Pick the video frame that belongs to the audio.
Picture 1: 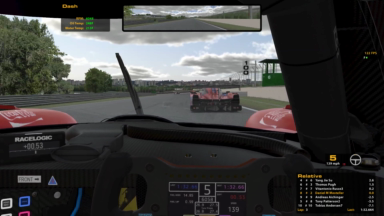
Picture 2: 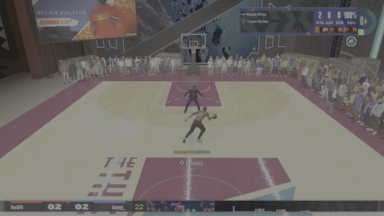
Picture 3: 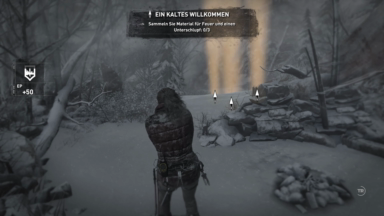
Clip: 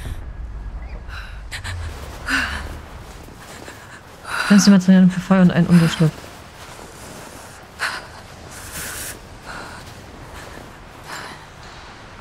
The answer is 3